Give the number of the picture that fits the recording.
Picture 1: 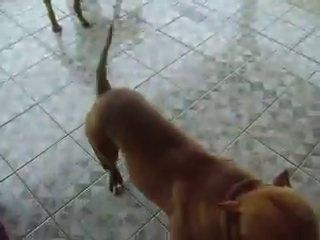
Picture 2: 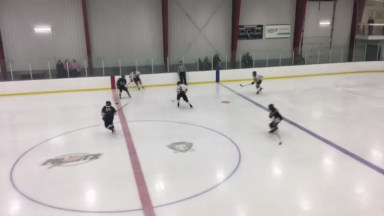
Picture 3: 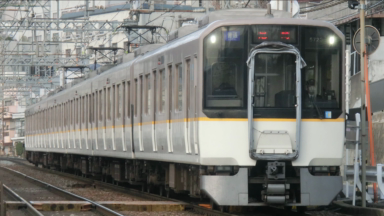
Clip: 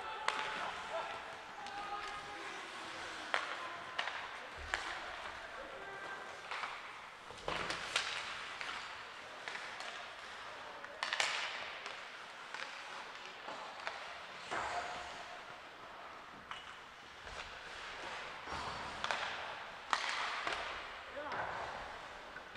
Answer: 2